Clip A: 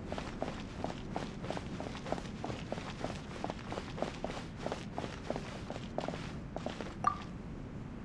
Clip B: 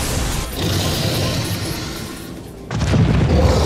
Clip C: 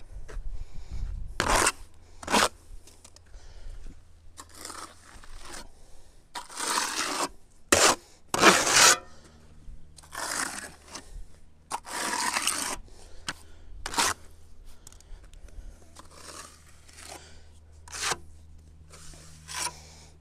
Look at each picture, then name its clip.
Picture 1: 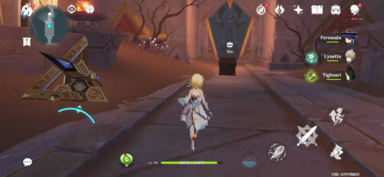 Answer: A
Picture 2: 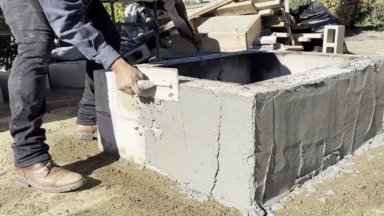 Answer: C